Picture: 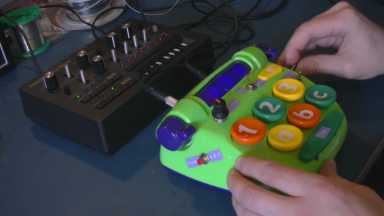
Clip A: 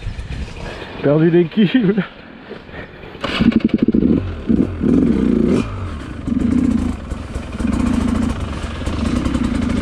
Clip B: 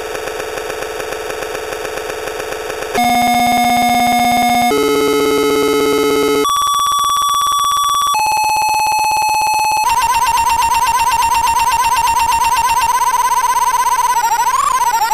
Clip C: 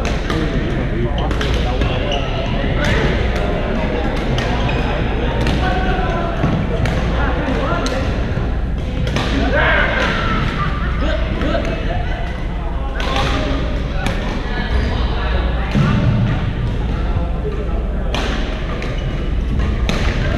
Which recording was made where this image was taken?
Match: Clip B